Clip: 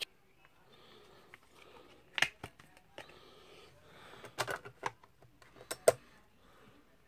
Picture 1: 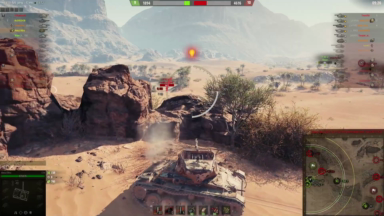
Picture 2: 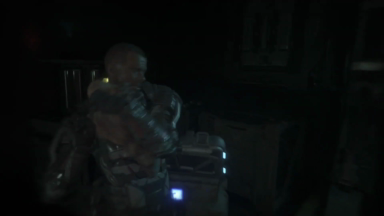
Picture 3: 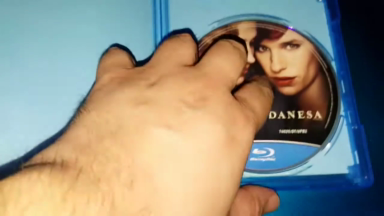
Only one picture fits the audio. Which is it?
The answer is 3